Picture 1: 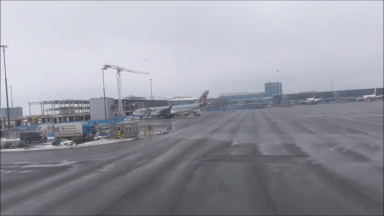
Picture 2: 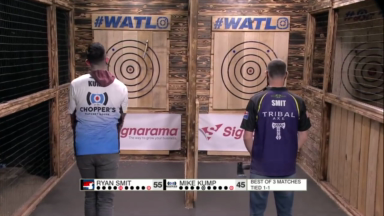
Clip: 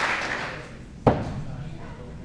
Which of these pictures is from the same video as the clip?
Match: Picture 2